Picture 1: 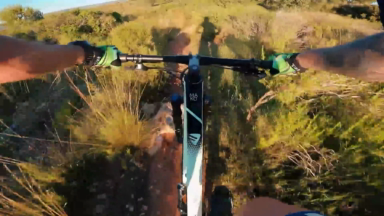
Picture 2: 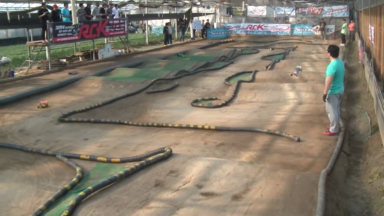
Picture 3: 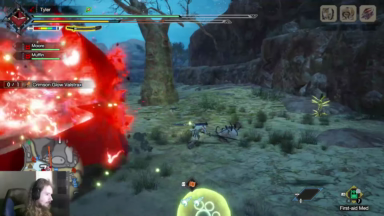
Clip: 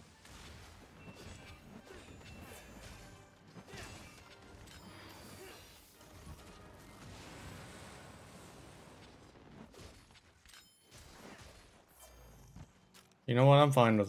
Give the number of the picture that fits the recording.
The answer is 3